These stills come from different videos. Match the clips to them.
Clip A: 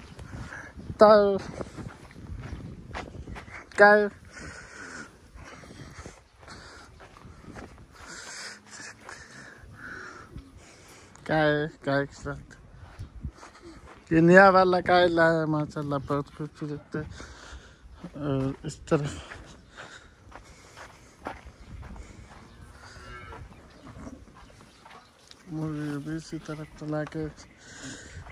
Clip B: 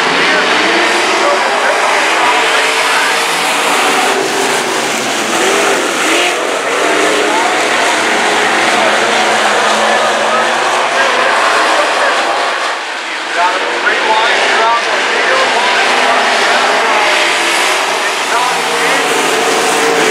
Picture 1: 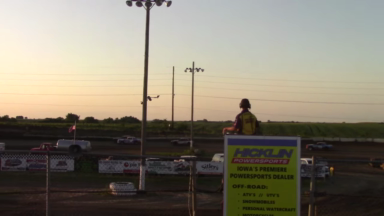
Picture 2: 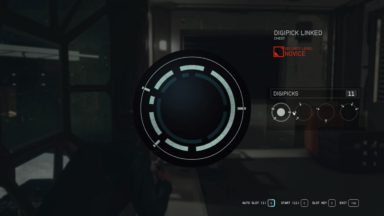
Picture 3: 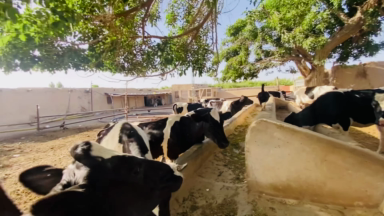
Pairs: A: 3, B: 1